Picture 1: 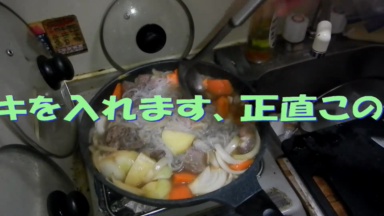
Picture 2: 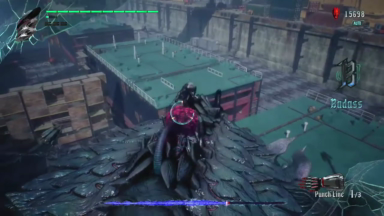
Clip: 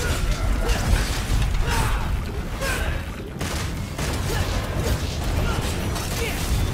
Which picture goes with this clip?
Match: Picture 2